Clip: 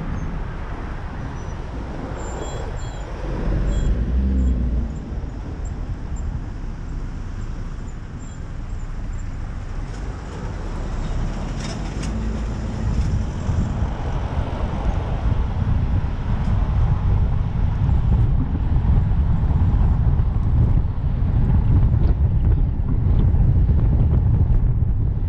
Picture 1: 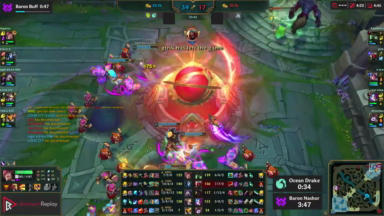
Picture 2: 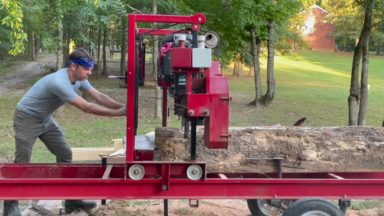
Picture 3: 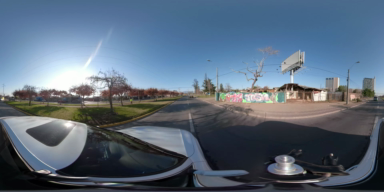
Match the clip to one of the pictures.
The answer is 3